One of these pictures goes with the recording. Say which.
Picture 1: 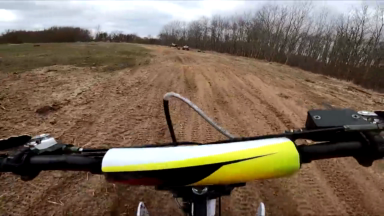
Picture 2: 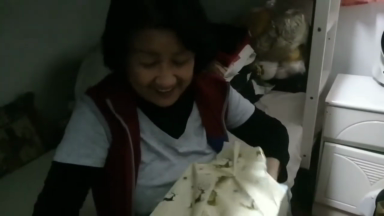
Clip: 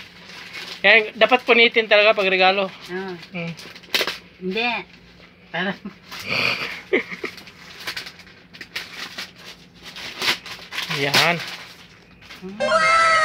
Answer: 2